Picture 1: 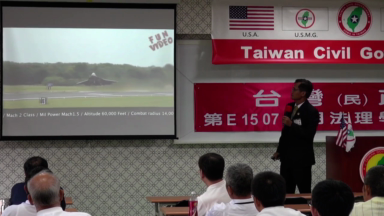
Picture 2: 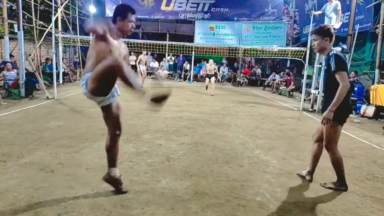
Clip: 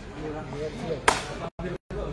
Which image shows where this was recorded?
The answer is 2